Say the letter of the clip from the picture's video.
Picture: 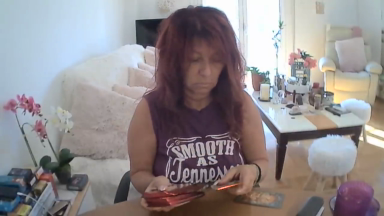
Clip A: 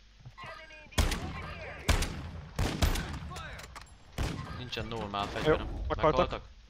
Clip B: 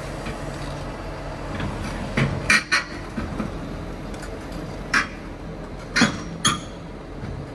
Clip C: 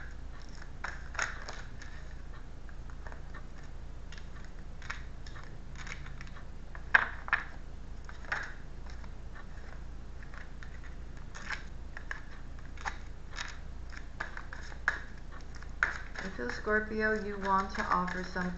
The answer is C